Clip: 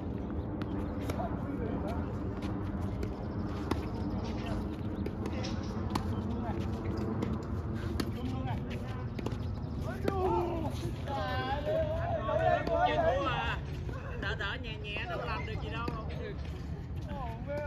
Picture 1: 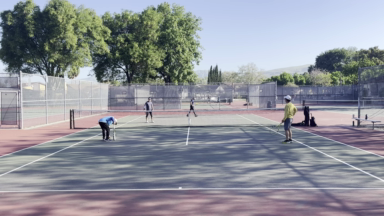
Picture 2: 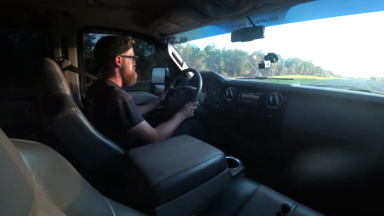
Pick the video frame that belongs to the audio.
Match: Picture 1